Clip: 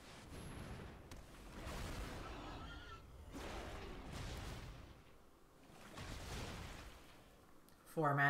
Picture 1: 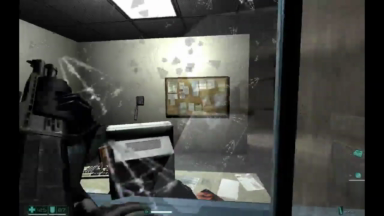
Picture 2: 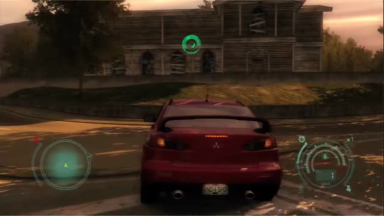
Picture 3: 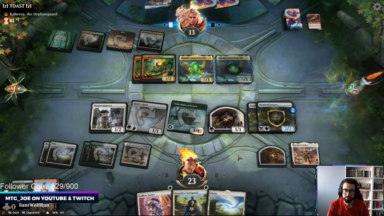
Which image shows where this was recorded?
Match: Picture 3